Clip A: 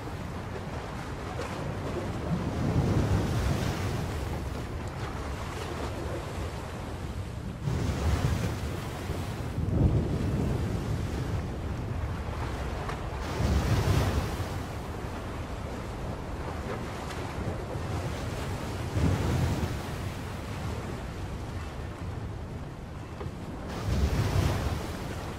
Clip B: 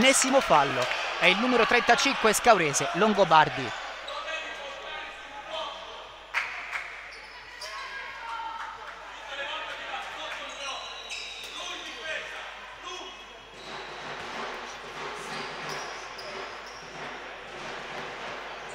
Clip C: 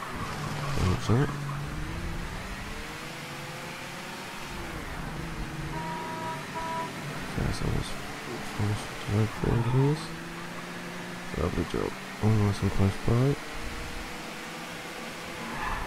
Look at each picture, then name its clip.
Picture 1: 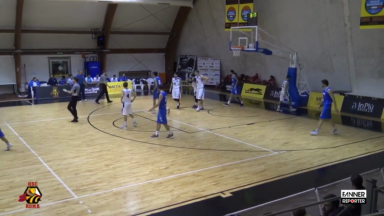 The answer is B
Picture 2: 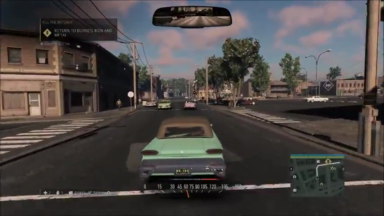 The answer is C